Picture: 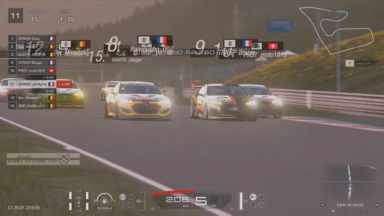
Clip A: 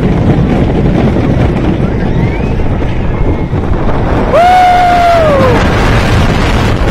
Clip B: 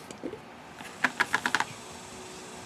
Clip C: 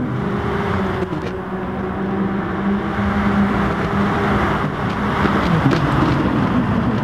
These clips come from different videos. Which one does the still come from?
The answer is C